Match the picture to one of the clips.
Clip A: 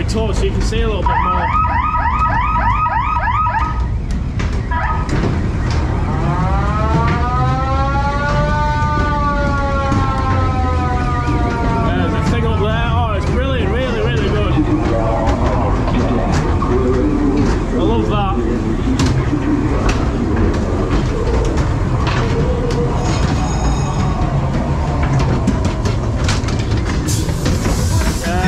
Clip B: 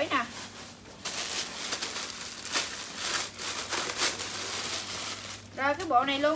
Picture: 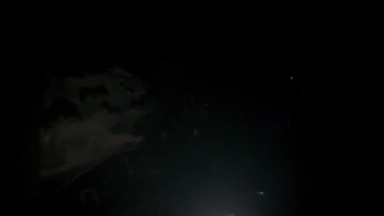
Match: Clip A